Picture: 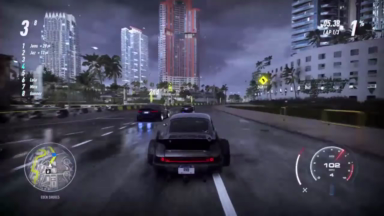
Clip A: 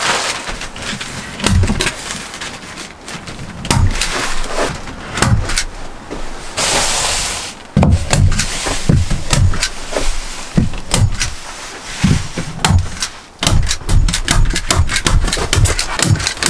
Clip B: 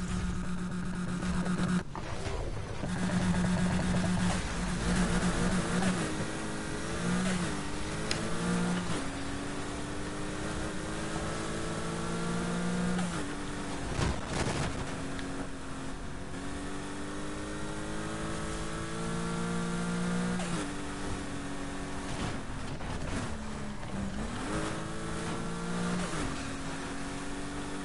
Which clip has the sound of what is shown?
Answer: B